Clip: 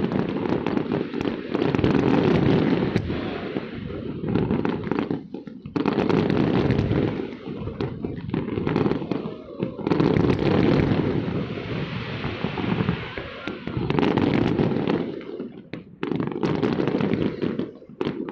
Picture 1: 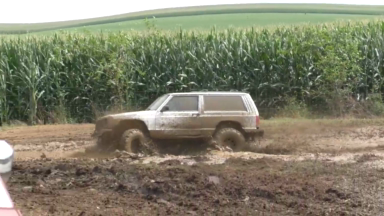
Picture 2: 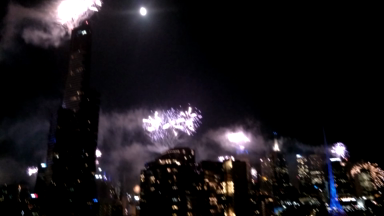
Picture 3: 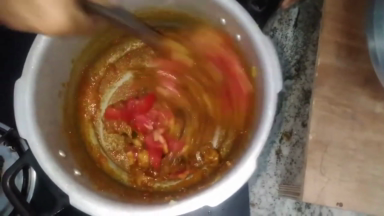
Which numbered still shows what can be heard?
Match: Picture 2